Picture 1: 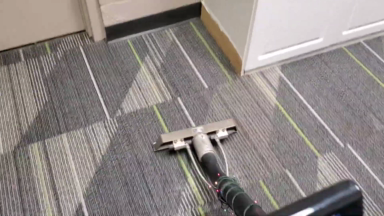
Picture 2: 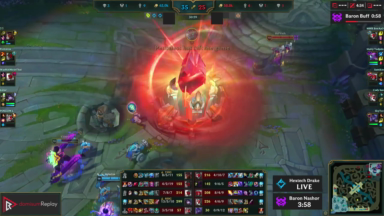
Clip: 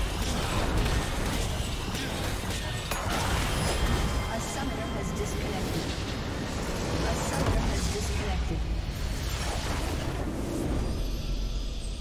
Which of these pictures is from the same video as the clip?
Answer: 2